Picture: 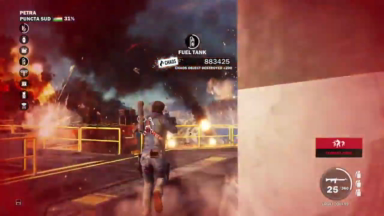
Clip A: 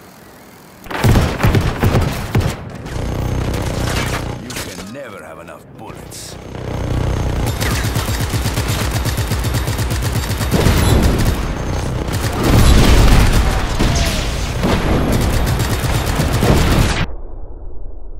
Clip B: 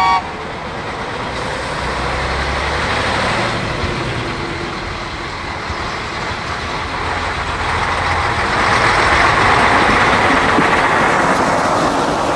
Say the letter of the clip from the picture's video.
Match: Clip A